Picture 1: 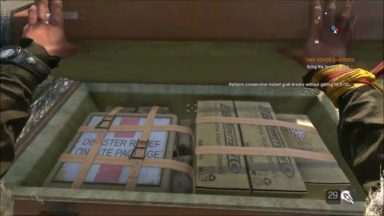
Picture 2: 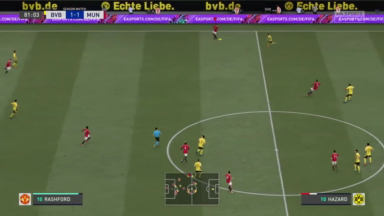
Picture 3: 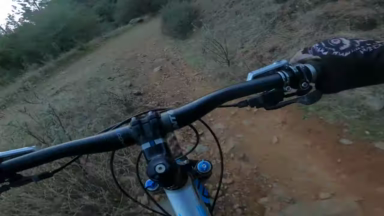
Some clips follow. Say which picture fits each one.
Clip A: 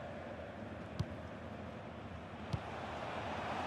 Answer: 2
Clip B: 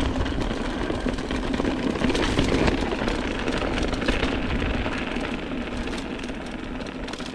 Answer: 3